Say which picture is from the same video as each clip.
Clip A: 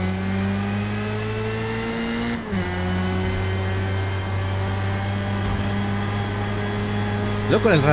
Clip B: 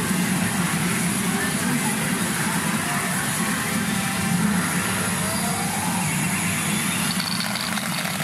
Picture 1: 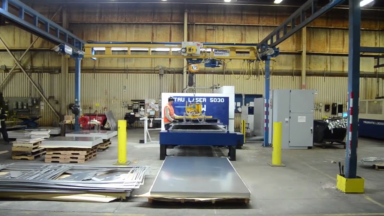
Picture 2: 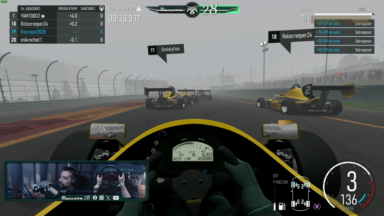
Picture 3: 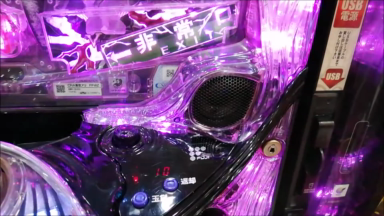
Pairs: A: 2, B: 3